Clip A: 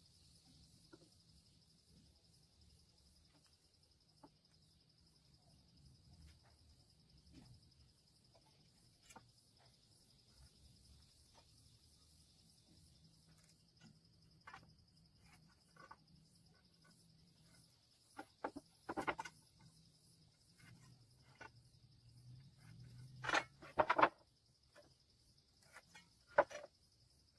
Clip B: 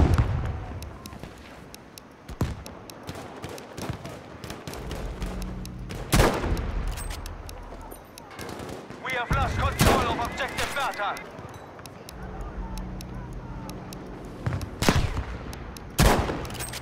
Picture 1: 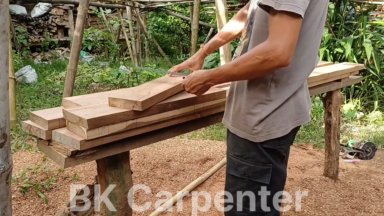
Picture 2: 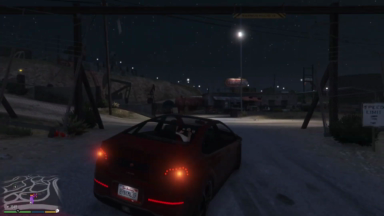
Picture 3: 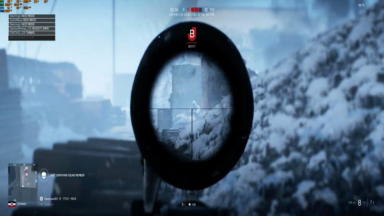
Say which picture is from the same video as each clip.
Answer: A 1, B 3